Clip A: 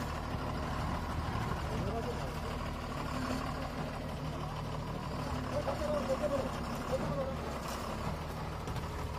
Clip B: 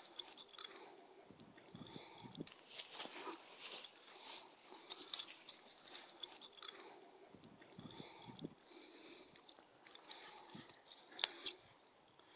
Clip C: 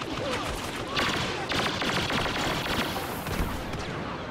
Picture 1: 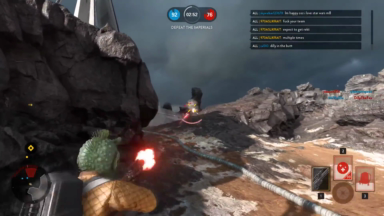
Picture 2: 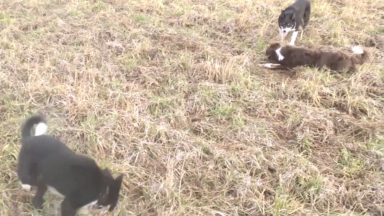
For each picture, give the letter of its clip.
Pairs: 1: C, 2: B